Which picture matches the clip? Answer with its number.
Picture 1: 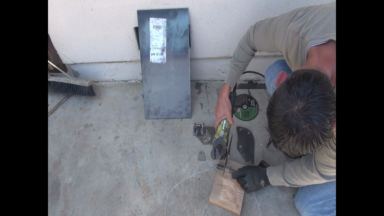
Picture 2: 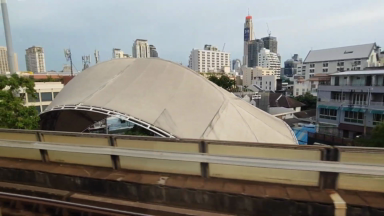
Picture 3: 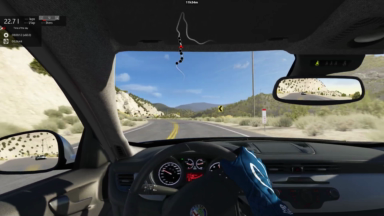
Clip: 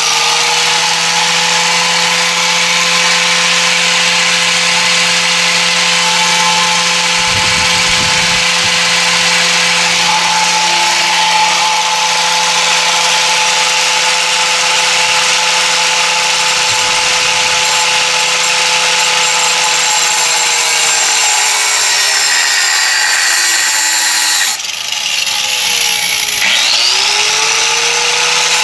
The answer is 1